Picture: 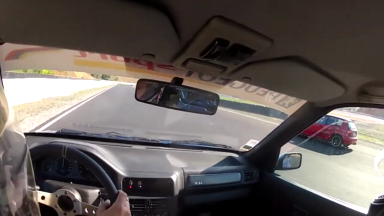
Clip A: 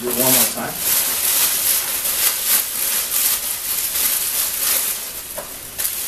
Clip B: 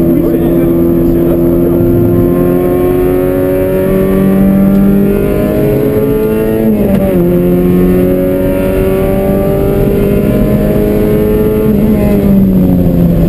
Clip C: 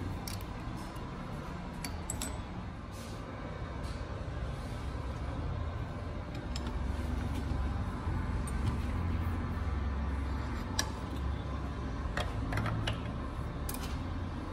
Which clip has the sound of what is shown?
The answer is B